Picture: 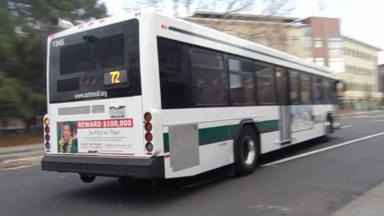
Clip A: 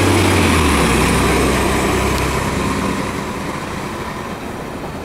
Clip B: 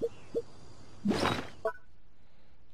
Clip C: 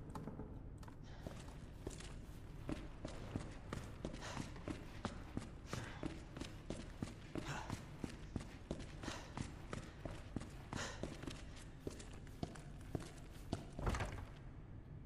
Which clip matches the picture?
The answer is A